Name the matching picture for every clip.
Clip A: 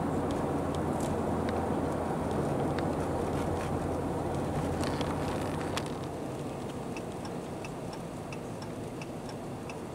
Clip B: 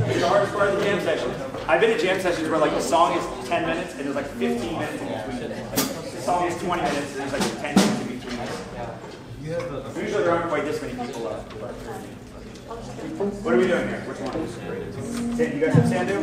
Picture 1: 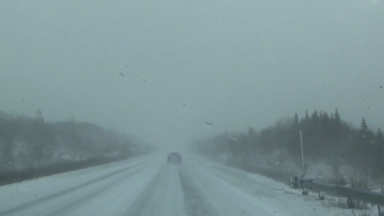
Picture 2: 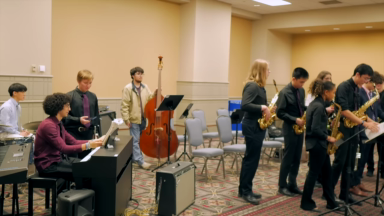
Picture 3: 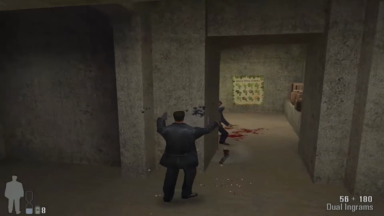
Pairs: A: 1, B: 2